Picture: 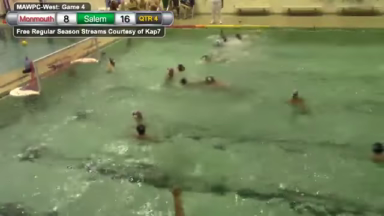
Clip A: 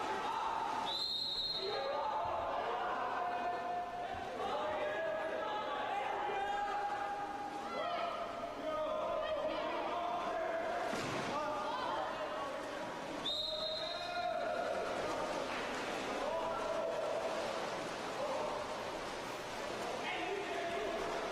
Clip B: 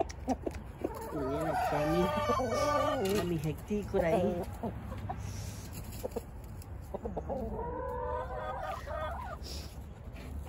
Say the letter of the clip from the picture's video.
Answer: A